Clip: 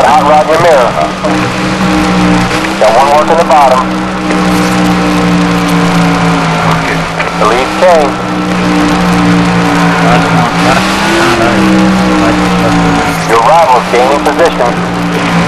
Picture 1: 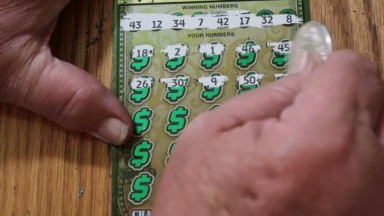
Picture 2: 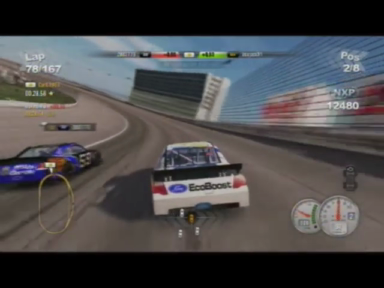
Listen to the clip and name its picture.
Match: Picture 2